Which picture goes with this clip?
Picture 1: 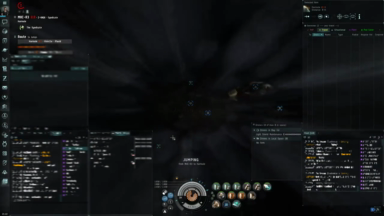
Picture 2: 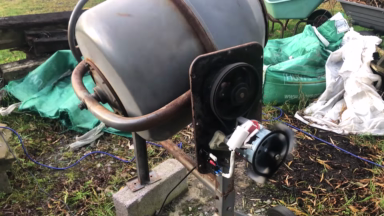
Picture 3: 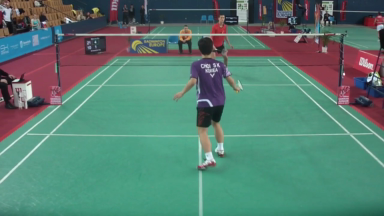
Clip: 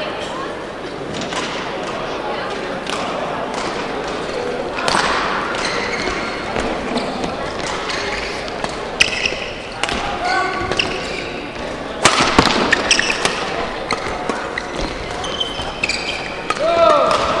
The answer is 3